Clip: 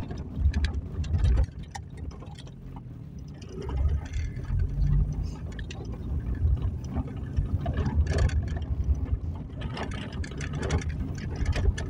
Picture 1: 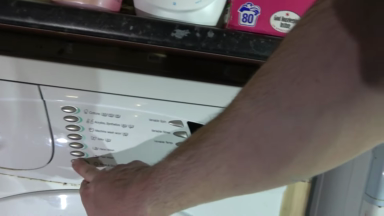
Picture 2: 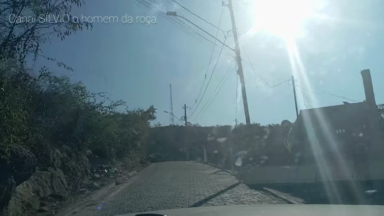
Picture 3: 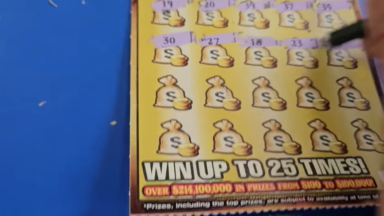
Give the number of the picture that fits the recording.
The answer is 2